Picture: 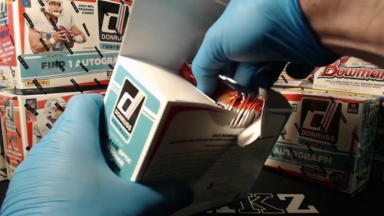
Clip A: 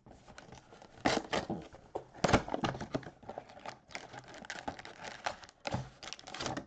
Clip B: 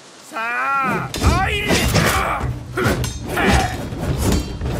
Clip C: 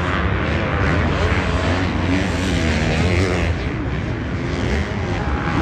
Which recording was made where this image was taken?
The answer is A